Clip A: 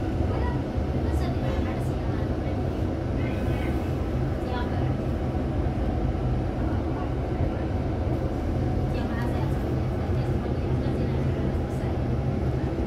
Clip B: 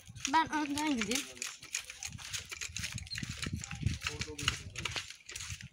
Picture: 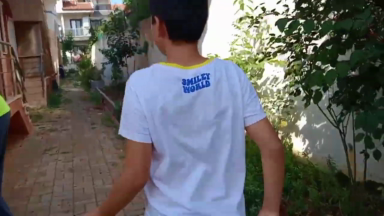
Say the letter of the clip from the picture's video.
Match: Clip B